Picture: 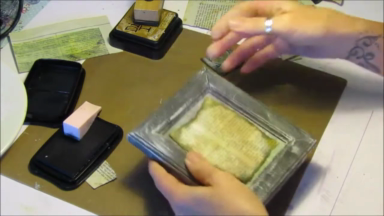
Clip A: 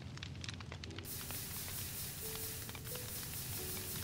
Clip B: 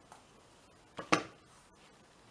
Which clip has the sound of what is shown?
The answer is B